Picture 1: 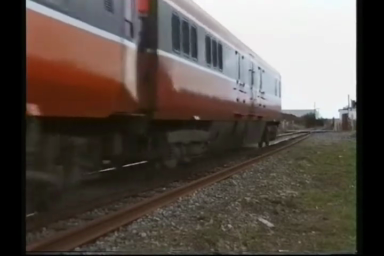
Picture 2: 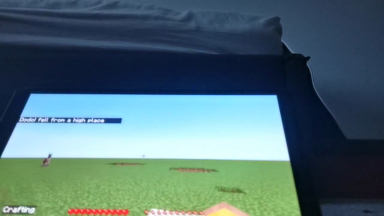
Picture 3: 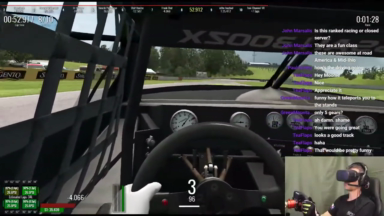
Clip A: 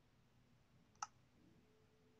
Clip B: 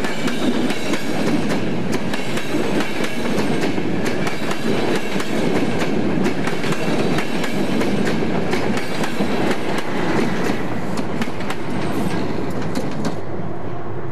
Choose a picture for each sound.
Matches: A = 2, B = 1